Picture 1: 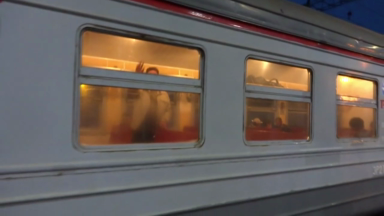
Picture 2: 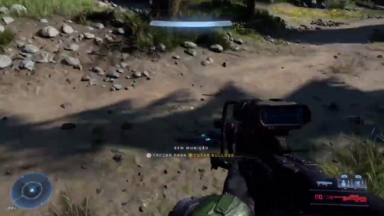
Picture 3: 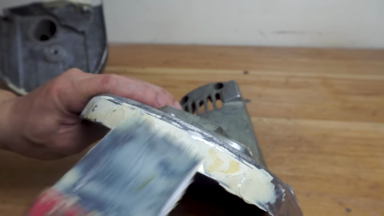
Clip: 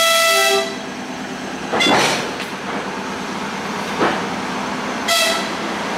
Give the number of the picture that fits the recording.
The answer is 1